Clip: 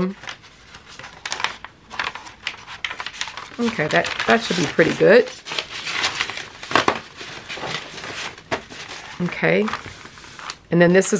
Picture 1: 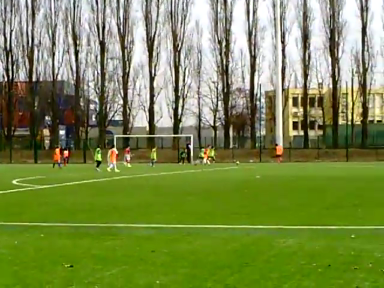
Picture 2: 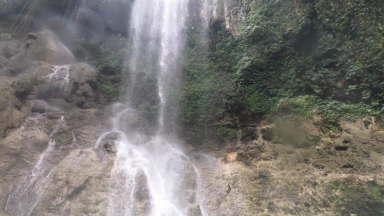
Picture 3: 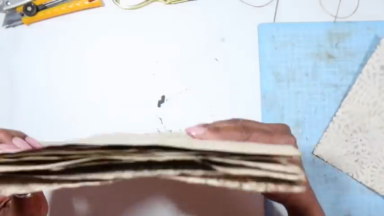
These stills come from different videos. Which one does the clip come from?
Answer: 3